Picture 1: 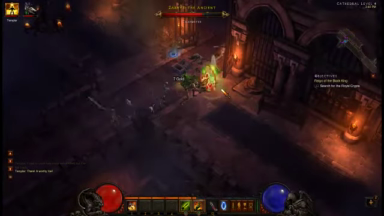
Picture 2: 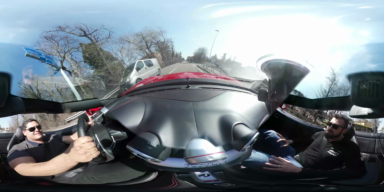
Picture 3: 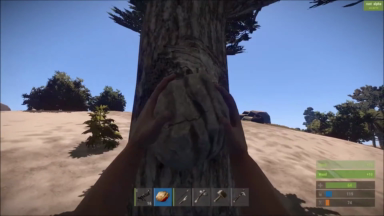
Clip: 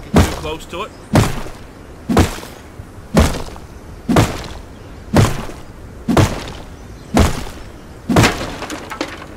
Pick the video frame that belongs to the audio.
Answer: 3